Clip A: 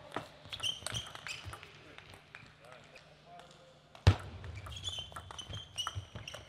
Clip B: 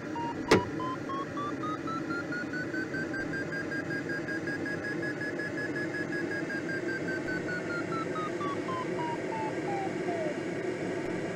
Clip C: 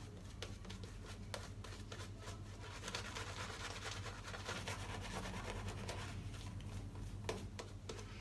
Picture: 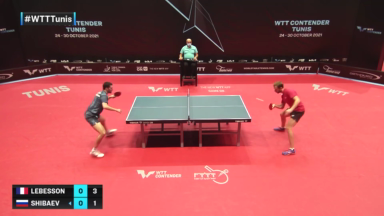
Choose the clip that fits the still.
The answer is A